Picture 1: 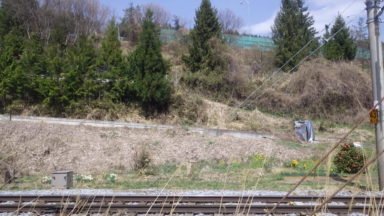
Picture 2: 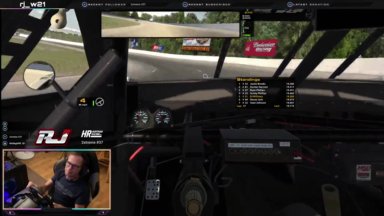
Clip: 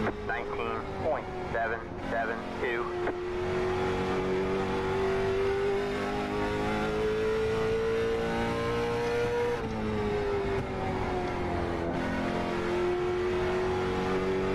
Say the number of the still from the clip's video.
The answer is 2